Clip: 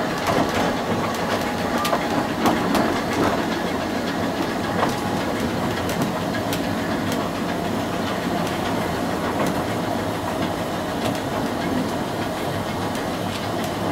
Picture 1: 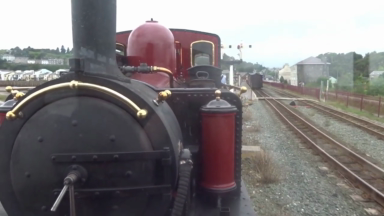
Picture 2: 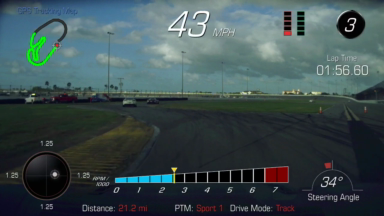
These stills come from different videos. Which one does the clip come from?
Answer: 1